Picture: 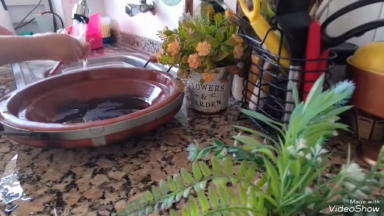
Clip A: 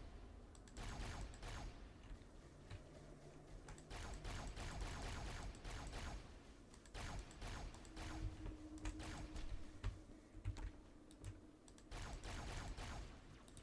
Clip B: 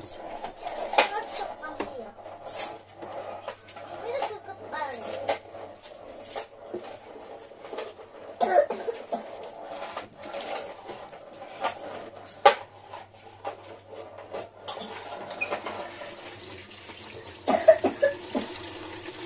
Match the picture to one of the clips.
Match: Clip B